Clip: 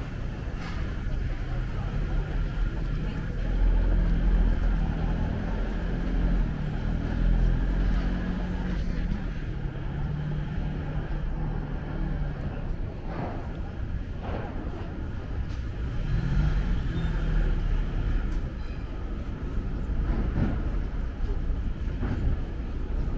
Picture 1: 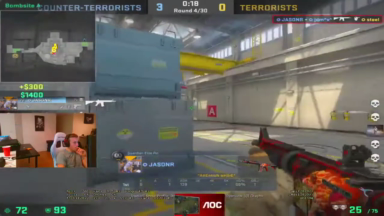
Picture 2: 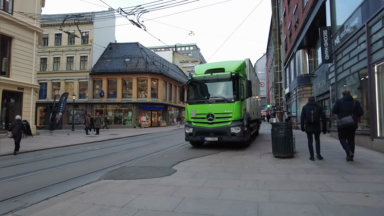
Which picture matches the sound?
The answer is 2